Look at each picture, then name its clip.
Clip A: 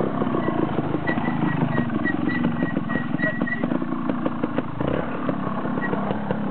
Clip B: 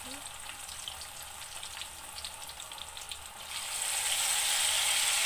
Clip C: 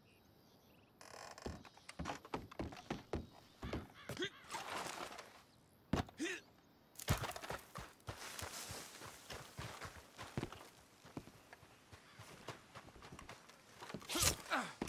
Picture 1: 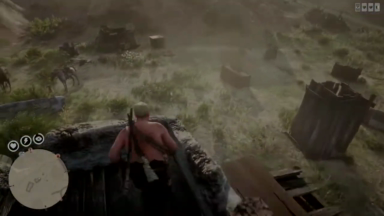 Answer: C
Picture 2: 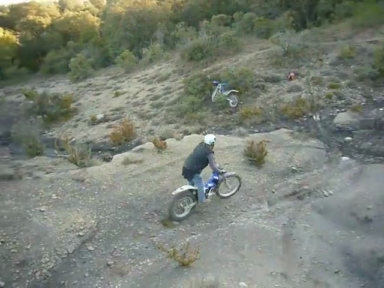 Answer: A